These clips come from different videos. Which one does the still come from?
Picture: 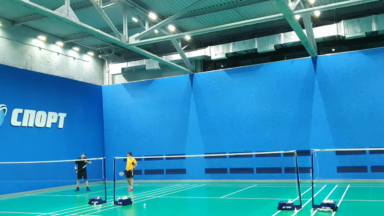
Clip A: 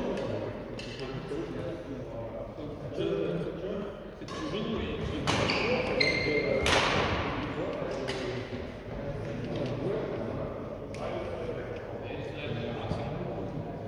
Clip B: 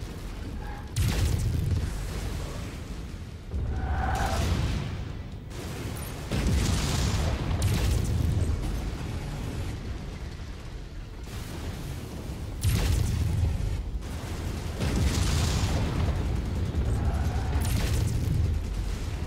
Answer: A